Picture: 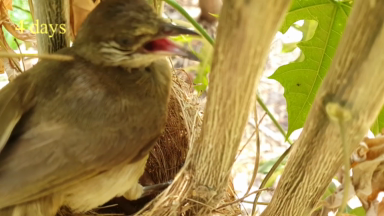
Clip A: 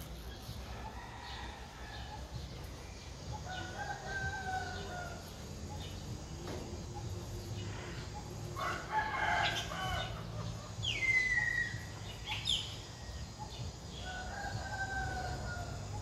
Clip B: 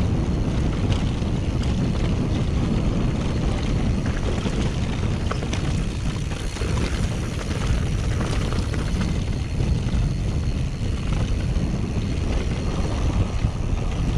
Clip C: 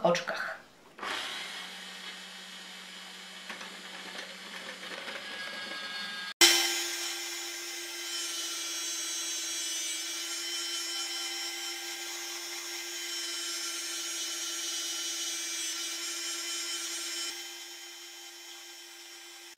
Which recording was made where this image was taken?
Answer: A